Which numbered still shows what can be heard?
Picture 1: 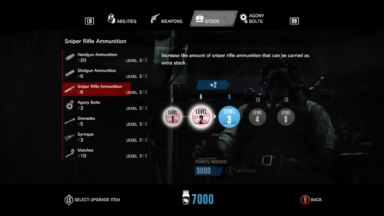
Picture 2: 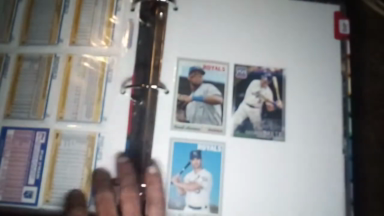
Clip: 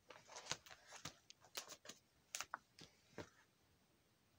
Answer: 2